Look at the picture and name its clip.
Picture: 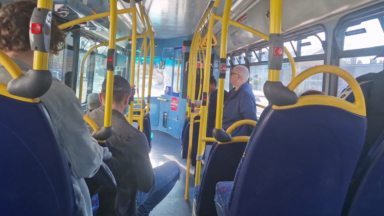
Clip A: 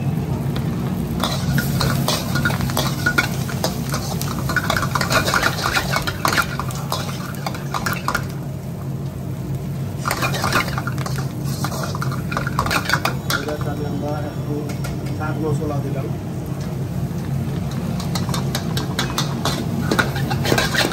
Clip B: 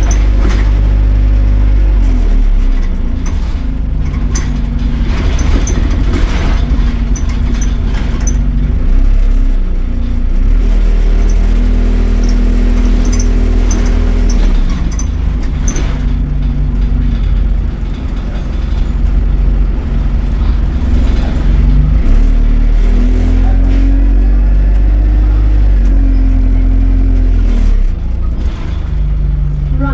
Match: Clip B